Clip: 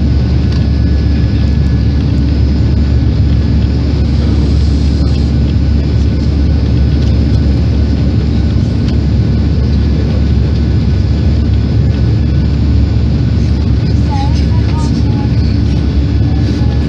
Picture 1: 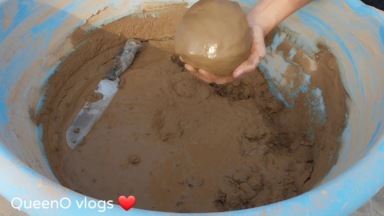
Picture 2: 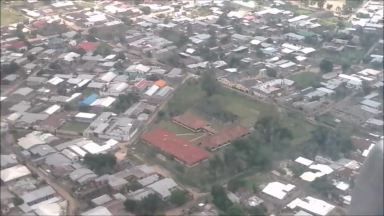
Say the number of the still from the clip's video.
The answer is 2